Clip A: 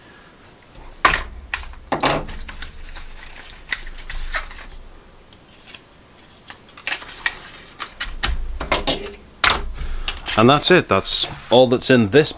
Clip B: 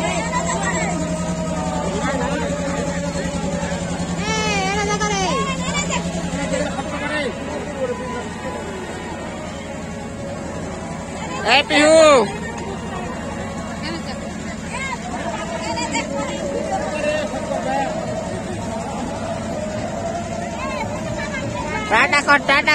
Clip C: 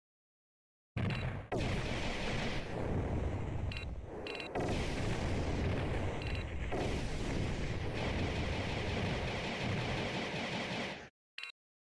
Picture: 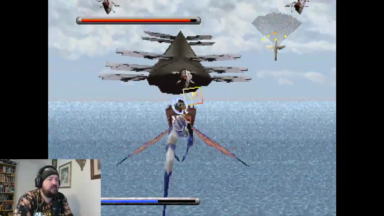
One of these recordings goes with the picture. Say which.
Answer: C